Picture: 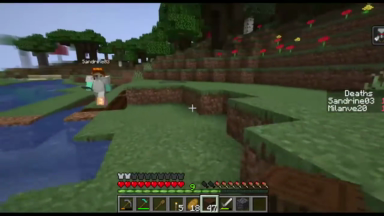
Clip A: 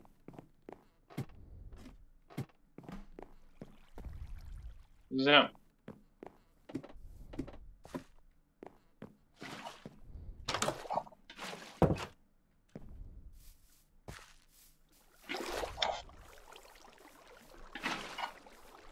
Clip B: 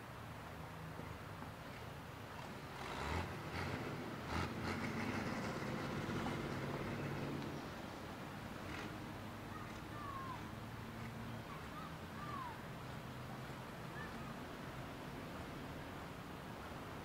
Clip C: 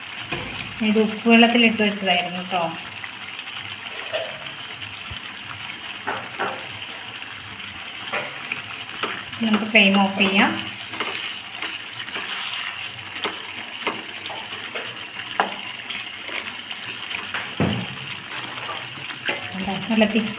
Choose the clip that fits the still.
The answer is A